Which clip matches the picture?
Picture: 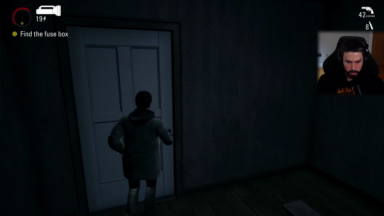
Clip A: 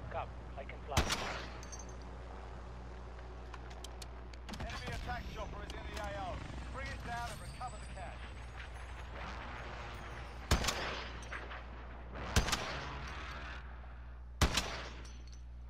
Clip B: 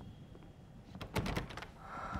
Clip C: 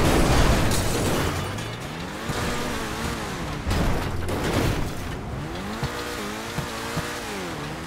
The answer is B